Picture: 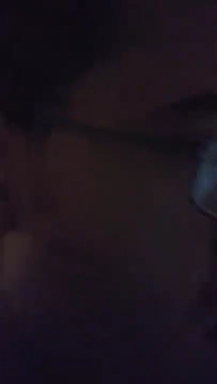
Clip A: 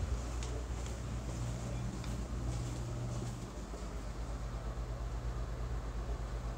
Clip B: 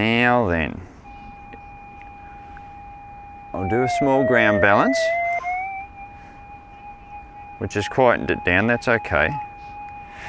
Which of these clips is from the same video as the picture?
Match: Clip A